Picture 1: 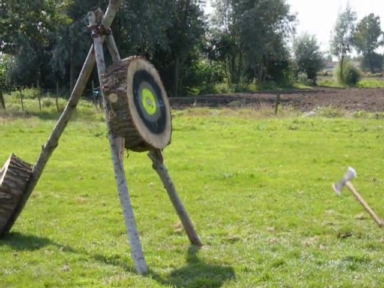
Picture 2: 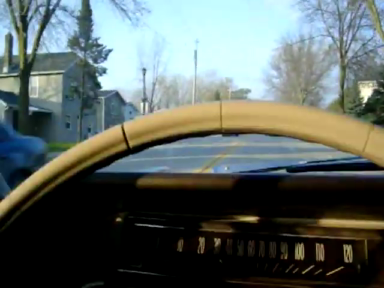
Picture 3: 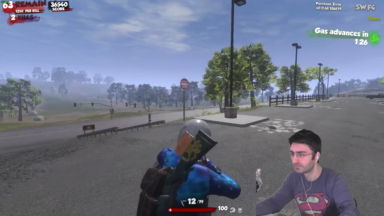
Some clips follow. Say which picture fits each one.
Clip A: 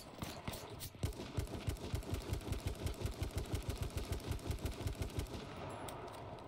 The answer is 3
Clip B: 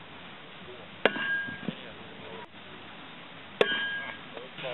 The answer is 1